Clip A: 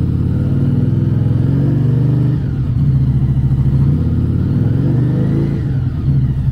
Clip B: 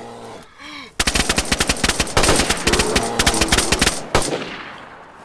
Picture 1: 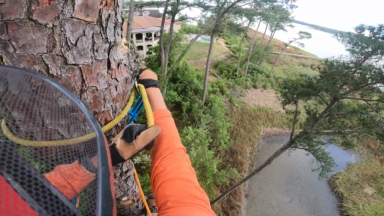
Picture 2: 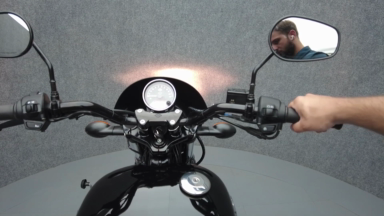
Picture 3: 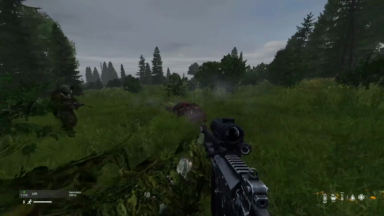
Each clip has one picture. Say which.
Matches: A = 2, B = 3